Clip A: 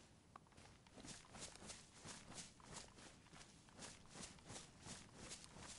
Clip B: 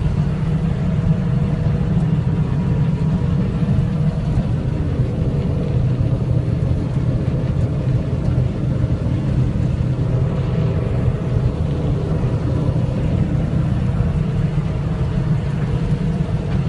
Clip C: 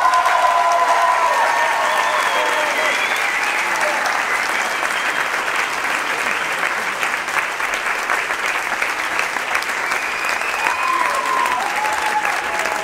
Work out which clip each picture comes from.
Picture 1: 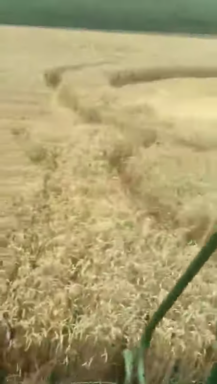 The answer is B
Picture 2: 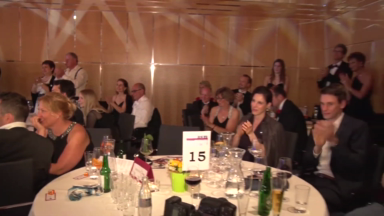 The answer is C